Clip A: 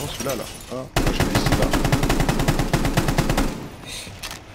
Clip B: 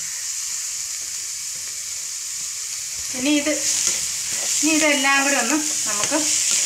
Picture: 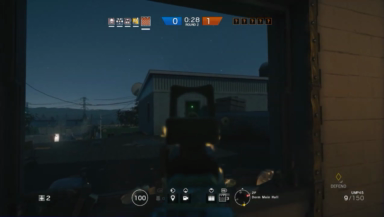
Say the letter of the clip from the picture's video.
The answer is A